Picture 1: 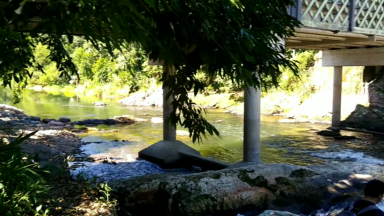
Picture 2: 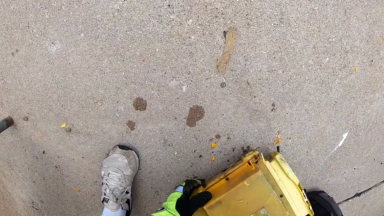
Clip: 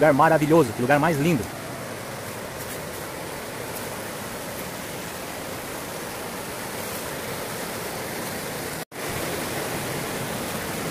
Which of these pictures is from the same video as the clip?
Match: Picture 1